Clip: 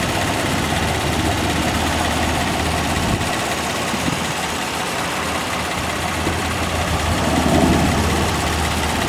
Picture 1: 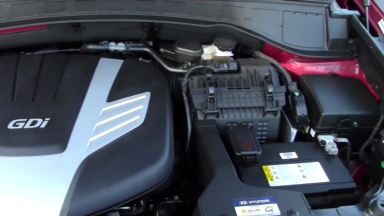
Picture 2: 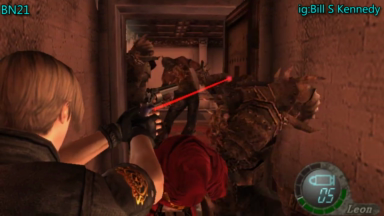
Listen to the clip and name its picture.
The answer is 1